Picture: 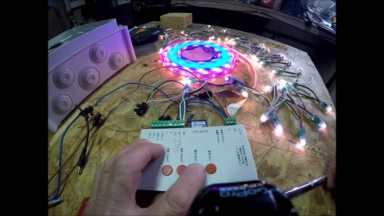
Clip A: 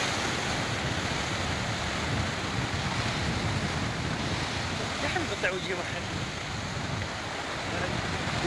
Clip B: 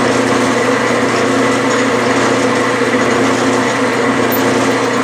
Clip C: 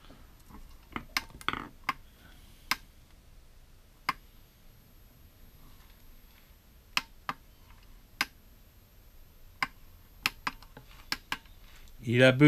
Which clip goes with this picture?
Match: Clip C